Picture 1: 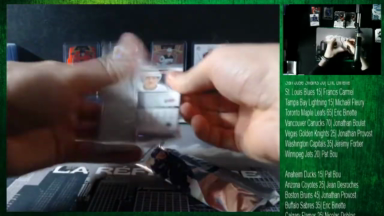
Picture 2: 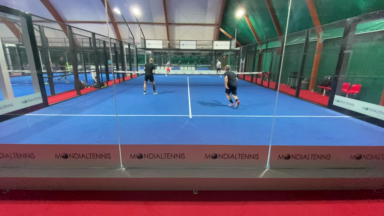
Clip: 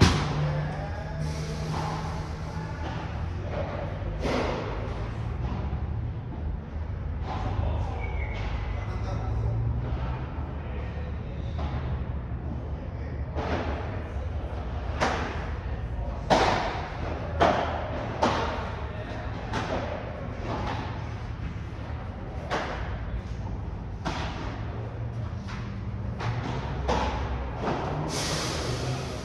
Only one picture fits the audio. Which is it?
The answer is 2